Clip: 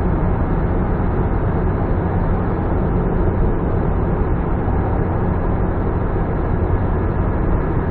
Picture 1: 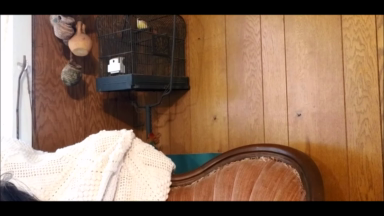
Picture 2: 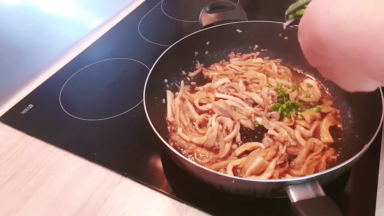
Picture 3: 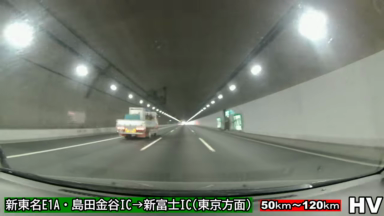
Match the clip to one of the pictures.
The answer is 3